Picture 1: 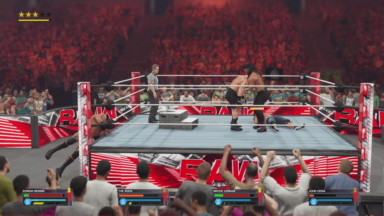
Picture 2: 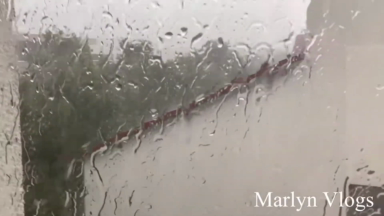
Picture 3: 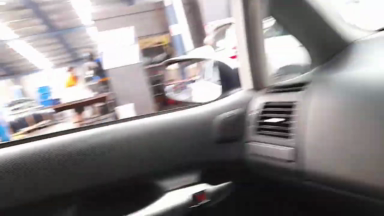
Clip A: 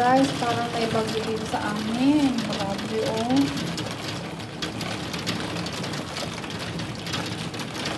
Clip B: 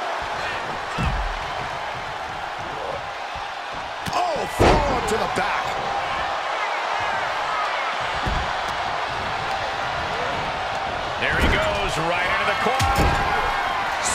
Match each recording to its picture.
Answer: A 2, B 1